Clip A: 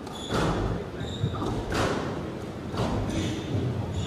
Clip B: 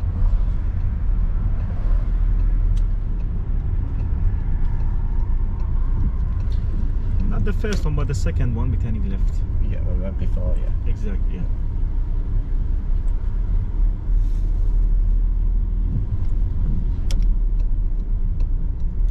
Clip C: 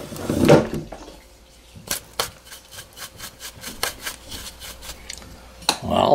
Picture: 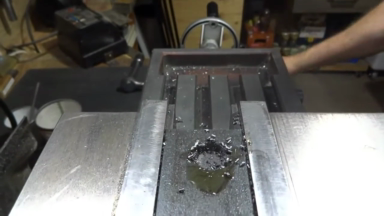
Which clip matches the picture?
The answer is C